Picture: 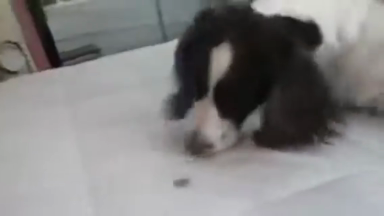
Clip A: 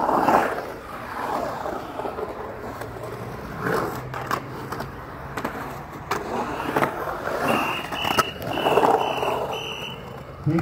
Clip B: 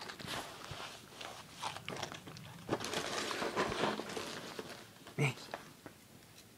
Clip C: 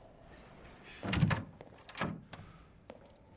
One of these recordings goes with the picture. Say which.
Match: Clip B